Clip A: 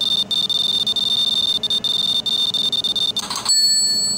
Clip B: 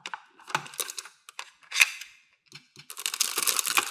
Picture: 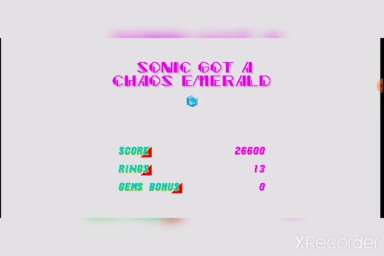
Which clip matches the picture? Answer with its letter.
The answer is A